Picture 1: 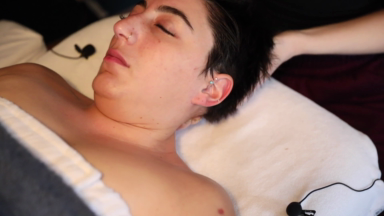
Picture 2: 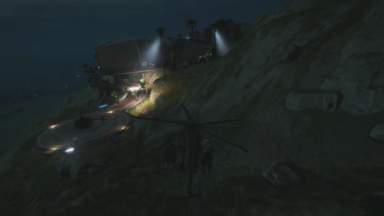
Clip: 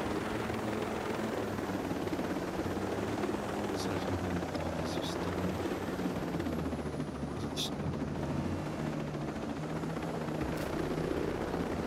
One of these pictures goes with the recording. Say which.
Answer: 2